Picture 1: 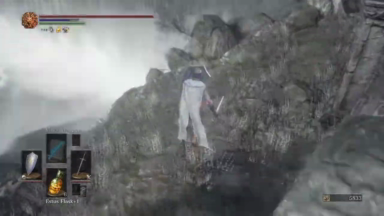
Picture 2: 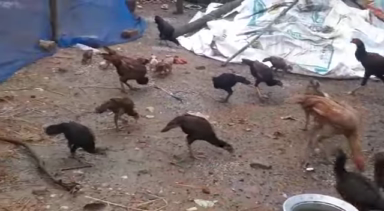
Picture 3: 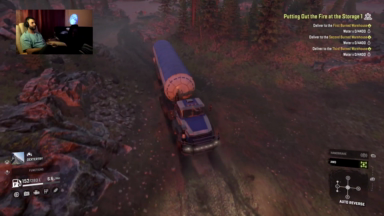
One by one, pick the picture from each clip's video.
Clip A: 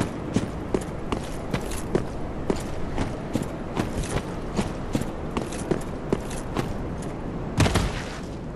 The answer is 1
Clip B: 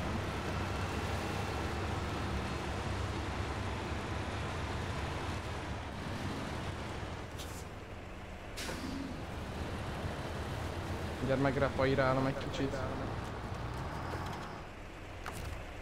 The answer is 3